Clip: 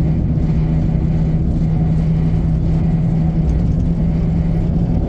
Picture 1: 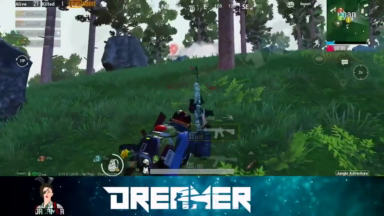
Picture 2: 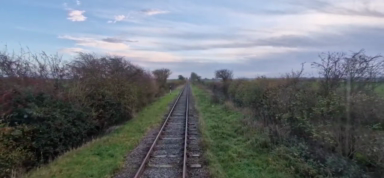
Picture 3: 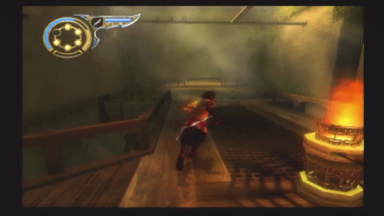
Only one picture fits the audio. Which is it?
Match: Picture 2